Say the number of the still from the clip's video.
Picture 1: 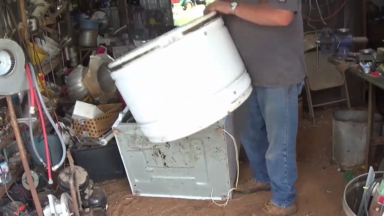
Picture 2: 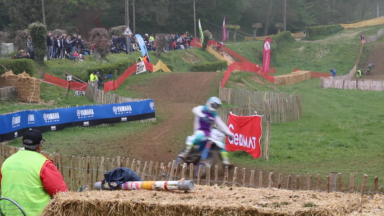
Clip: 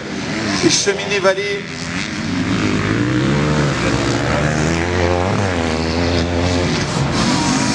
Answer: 2